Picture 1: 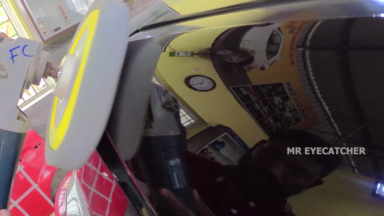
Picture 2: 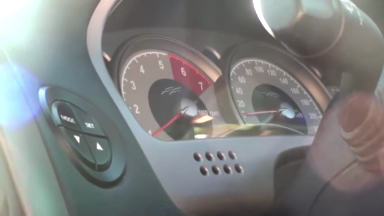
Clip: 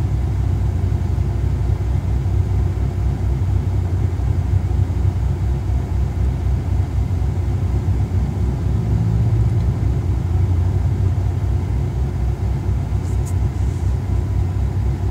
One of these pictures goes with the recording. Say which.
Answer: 2